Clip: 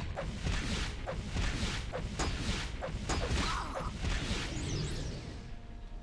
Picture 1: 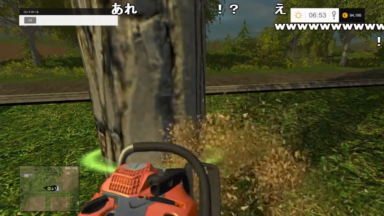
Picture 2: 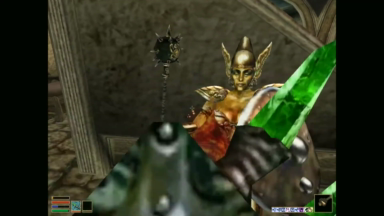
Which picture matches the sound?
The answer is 2